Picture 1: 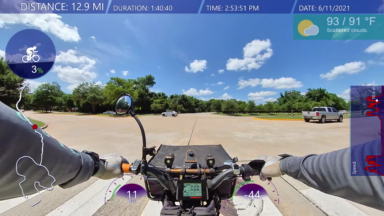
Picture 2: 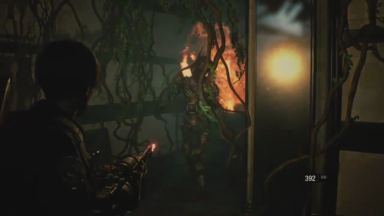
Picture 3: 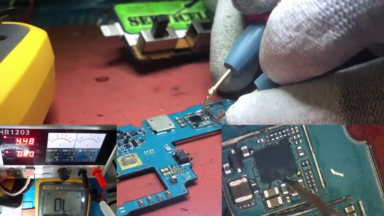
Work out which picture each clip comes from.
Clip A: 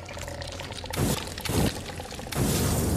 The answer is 2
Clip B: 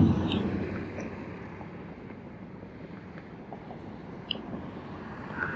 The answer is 1